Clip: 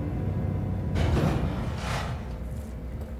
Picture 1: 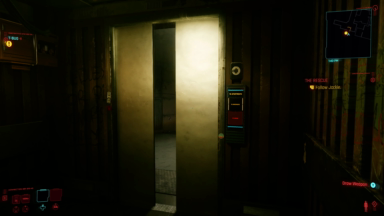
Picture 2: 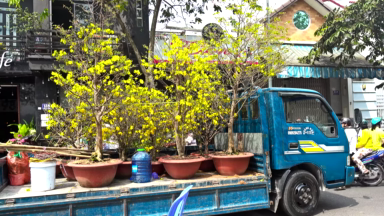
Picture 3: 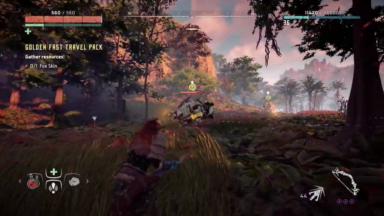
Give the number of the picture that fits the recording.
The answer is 1